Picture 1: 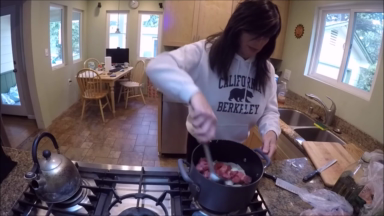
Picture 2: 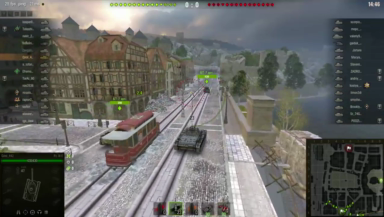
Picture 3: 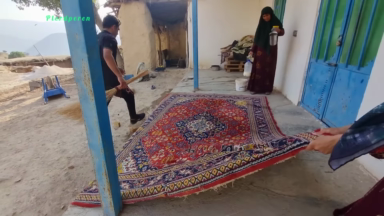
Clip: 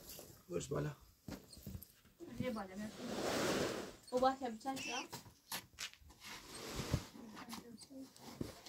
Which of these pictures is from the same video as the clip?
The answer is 3